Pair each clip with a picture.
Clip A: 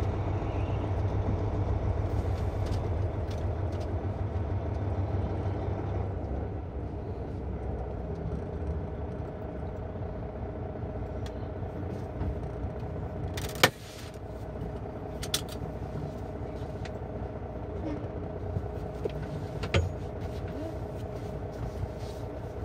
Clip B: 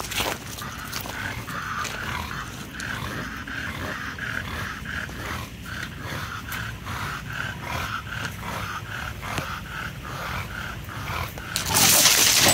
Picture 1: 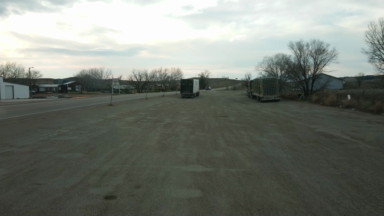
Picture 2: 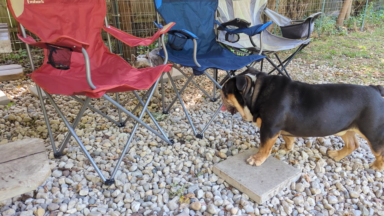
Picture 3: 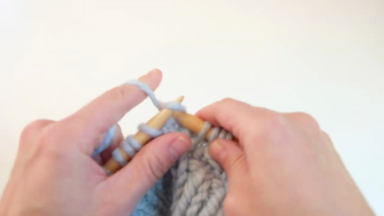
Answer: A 1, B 2